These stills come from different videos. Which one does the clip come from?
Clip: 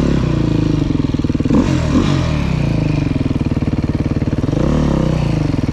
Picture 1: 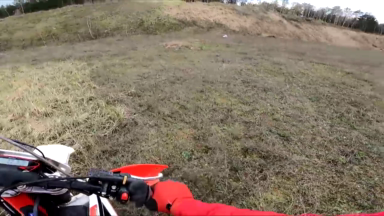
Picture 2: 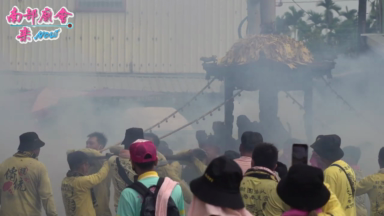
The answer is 1